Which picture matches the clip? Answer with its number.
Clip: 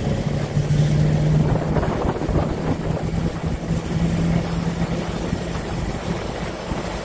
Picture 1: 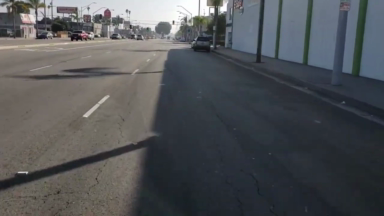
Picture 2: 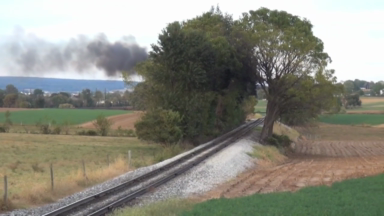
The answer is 1